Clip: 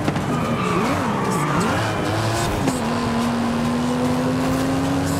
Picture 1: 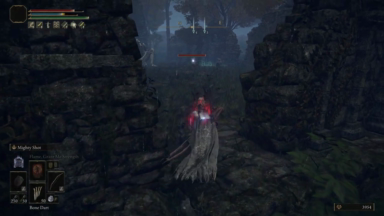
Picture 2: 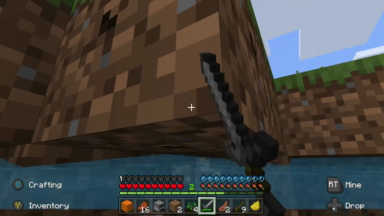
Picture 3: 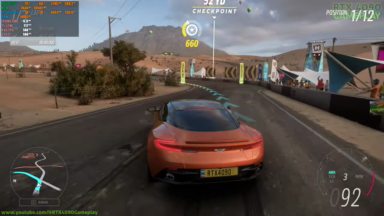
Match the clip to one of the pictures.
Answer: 3